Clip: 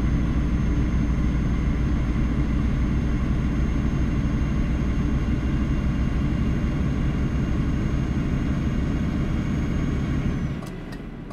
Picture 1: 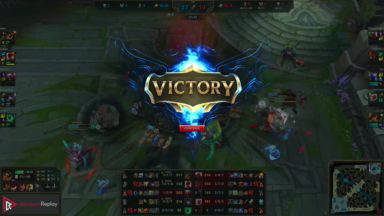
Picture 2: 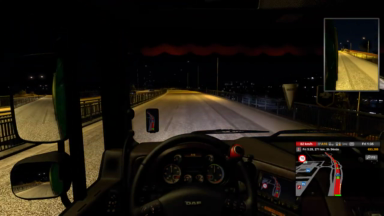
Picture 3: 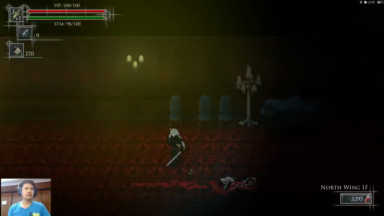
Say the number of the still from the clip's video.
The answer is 2